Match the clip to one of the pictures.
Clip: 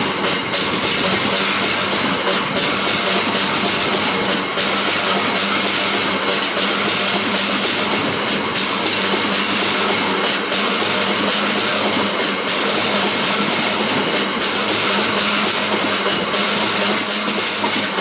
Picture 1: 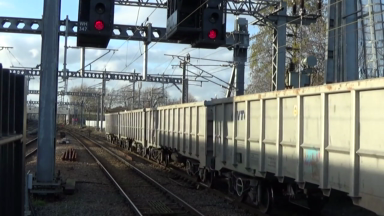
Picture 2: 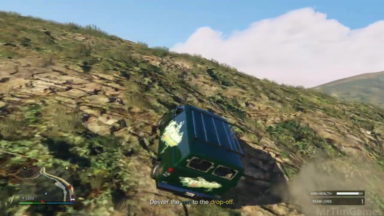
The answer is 1